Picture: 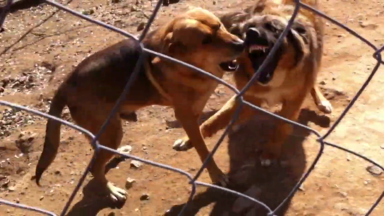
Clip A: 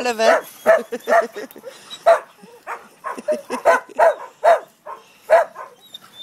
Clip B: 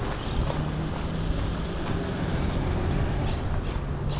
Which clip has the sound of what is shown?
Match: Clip A